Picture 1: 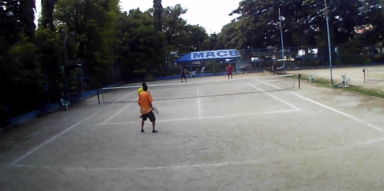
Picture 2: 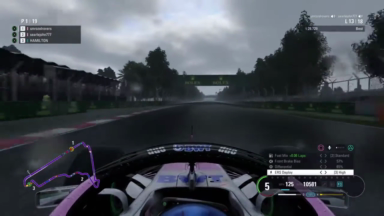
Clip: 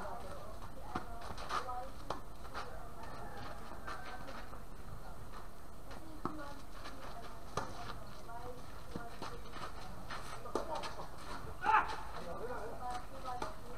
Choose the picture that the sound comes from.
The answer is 1